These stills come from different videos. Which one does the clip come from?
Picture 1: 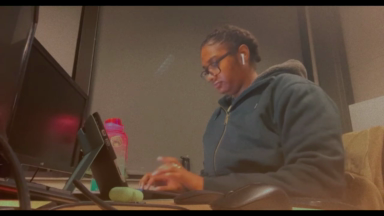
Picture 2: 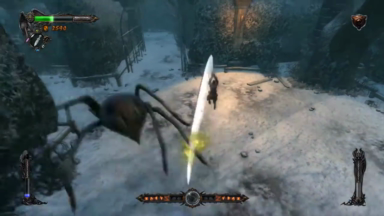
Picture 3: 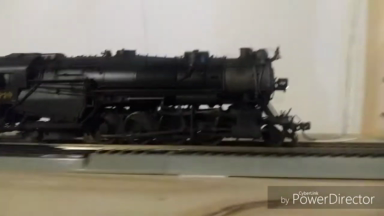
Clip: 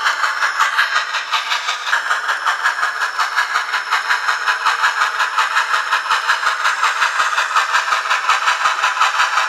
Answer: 3